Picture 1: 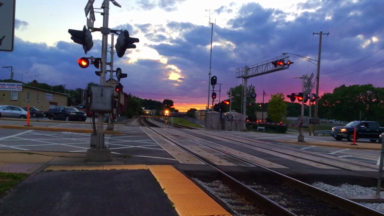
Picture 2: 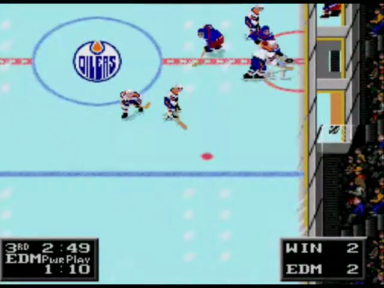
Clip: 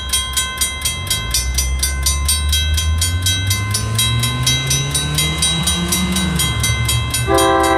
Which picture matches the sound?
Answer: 1